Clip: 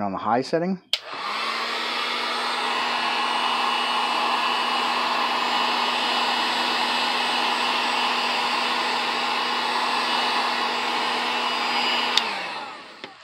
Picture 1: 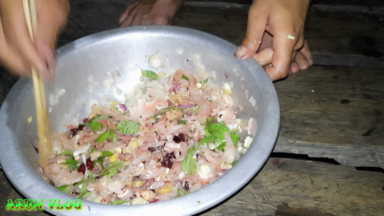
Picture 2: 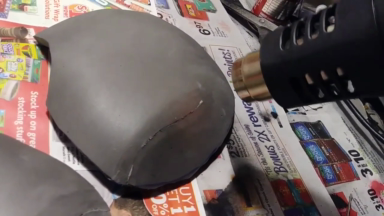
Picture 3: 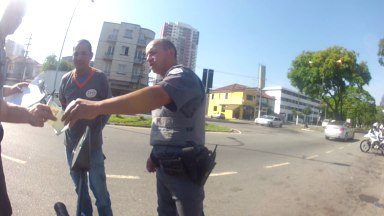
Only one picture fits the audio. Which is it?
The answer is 2